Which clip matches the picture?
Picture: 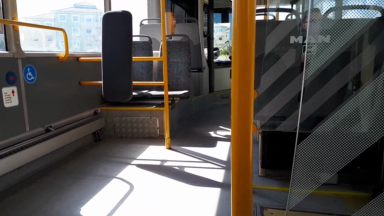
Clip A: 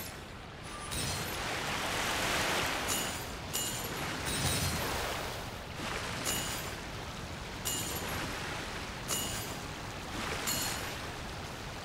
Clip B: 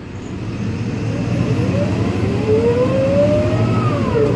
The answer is B